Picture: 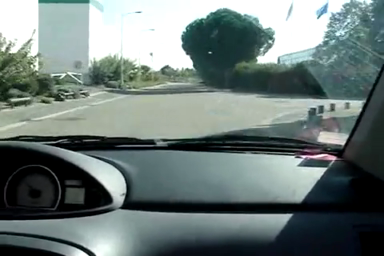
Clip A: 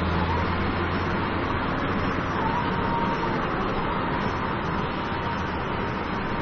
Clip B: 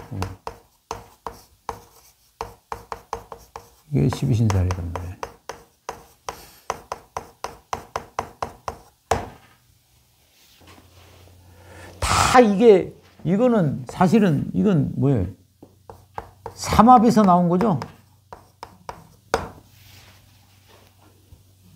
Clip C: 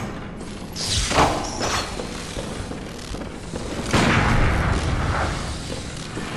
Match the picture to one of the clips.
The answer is A